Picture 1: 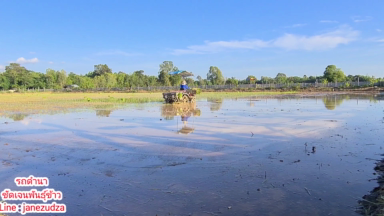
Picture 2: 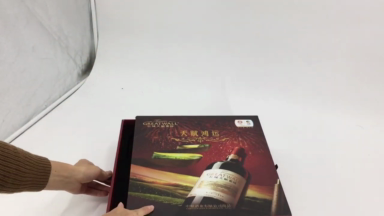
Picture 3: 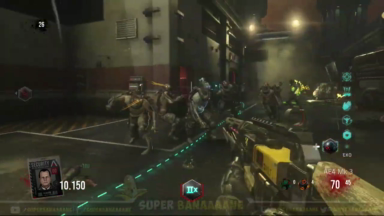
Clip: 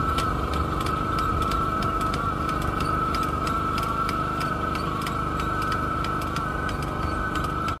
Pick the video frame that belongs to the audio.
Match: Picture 1